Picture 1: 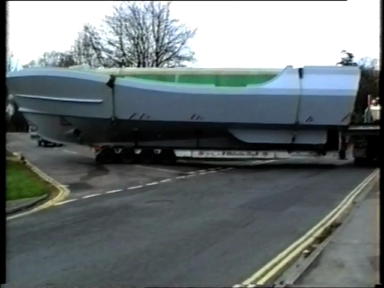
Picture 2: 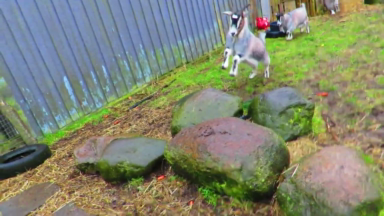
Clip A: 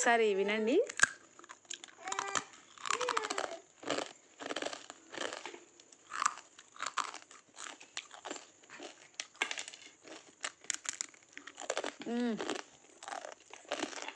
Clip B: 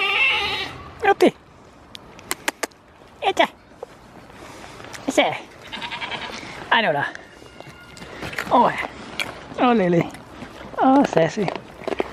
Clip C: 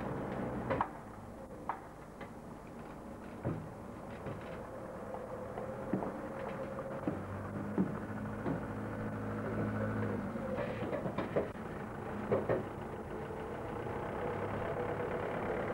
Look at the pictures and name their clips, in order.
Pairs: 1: C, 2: B